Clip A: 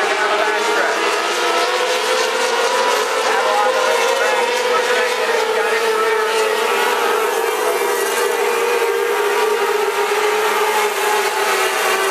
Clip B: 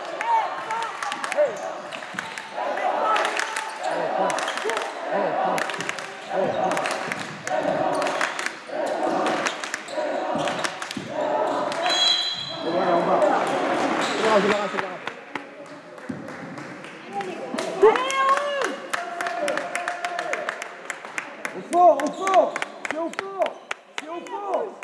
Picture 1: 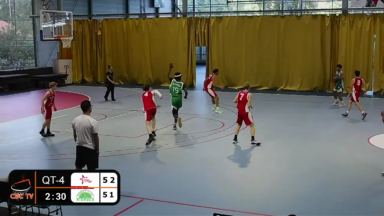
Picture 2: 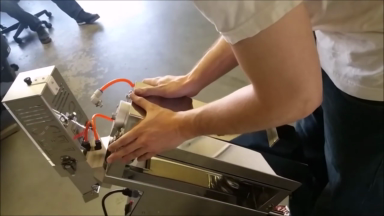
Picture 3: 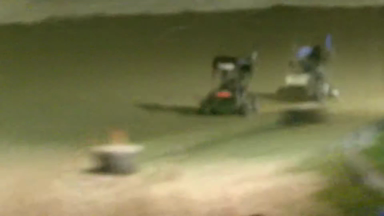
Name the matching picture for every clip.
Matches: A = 3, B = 1